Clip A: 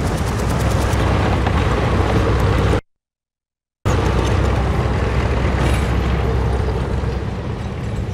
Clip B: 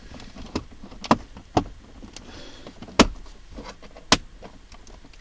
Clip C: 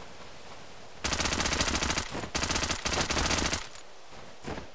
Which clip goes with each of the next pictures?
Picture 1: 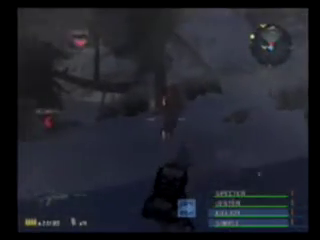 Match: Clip C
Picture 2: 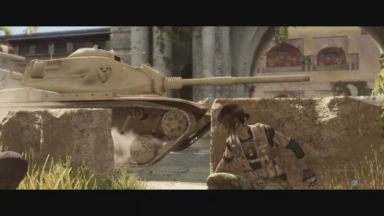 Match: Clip A